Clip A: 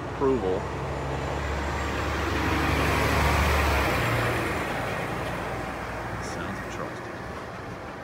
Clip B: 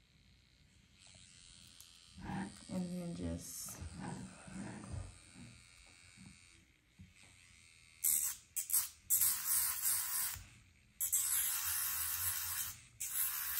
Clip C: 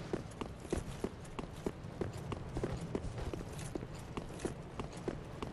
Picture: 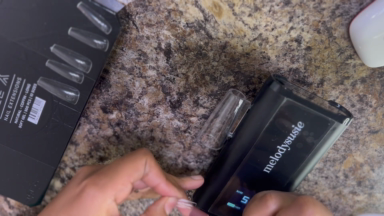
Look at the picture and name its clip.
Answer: B